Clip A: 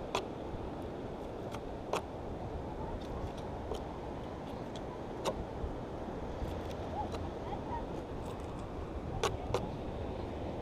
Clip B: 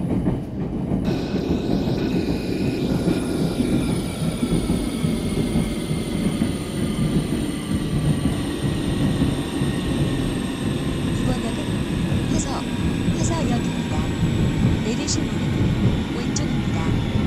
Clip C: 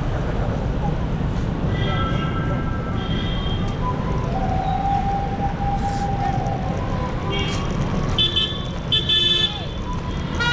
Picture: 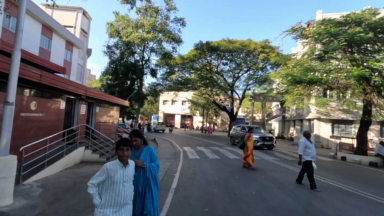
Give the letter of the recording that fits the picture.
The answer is C